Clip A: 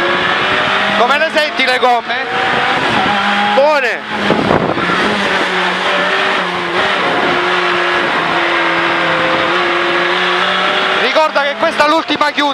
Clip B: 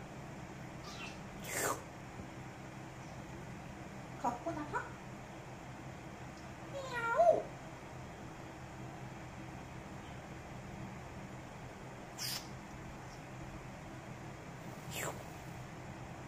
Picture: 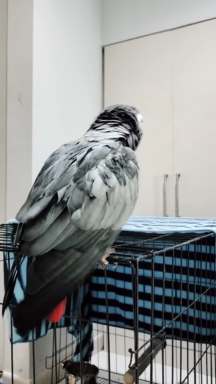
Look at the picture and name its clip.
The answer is B